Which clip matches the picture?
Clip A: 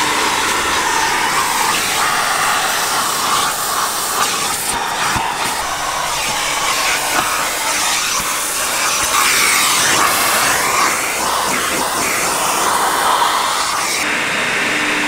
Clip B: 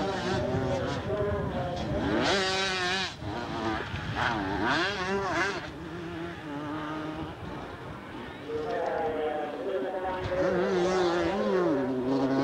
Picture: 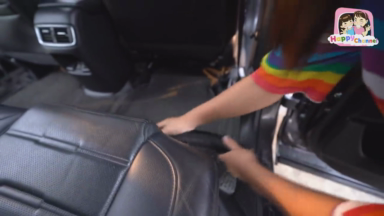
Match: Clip A